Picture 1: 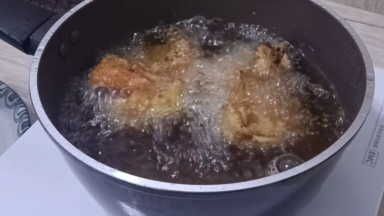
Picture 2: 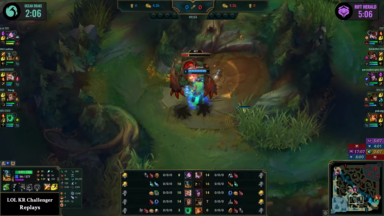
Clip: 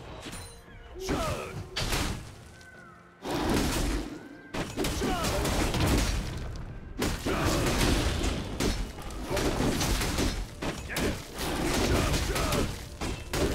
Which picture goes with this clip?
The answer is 2